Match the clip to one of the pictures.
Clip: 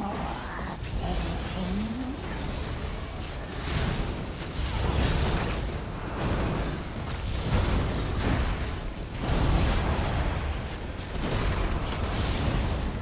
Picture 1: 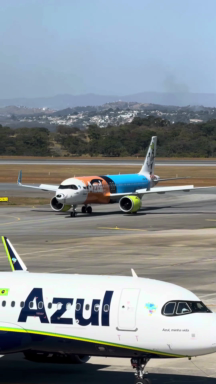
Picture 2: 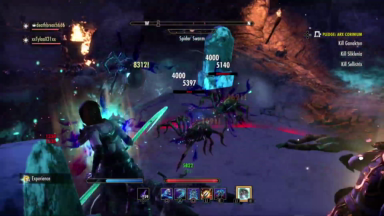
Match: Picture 2